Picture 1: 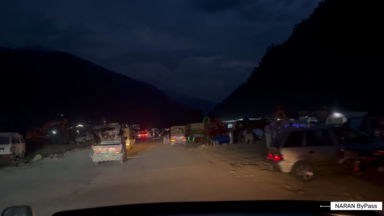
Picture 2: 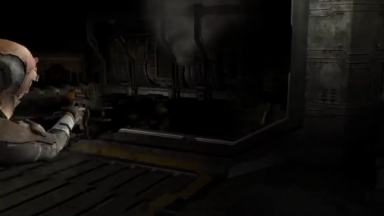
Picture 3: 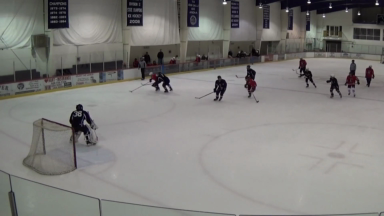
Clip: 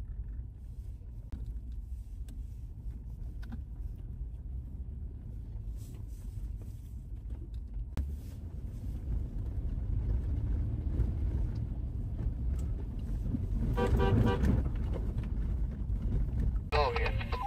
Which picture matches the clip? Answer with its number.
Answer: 1